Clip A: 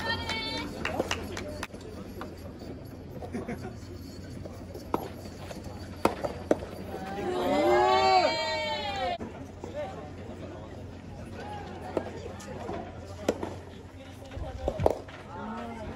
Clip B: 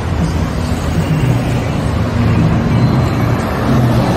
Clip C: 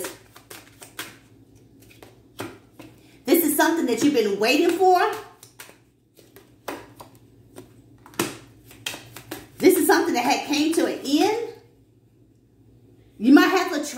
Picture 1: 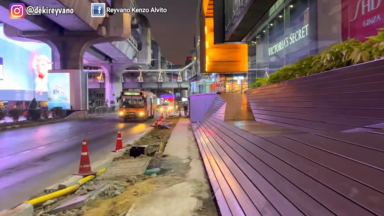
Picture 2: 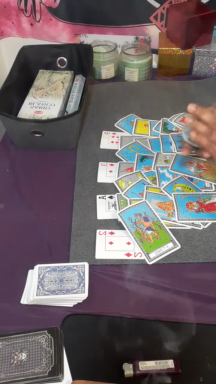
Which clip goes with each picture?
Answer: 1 B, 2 C